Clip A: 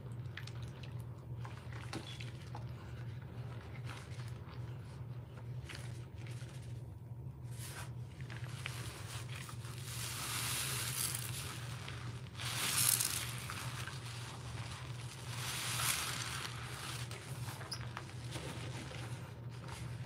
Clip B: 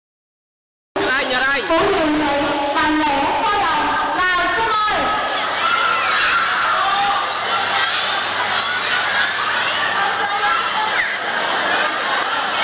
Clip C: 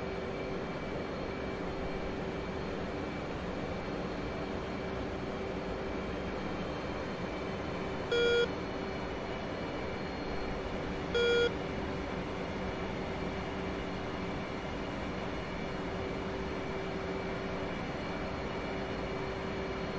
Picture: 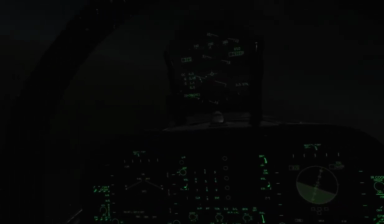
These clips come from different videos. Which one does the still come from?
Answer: C